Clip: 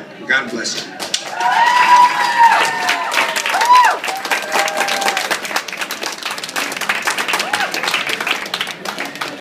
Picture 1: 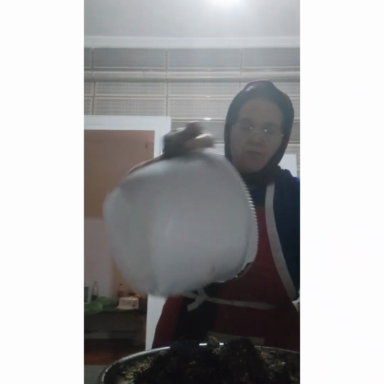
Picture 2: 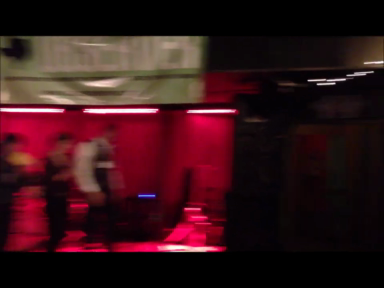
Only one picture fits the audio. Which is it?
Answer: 2